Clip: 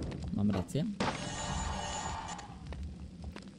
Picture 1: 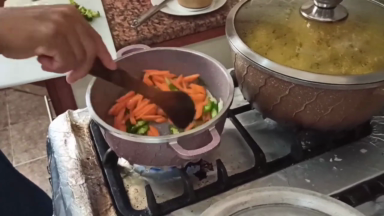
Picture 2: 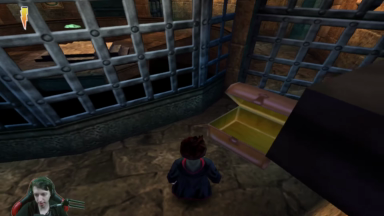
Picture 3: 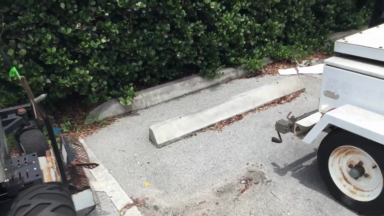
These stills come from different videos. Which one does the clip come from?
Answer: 2